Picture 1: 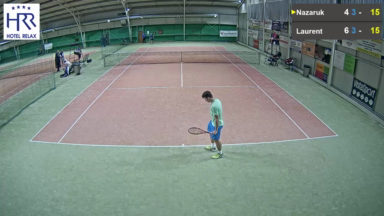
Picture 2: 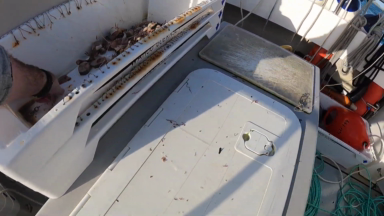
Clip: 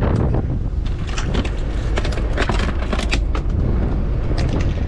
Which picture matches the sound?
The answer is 2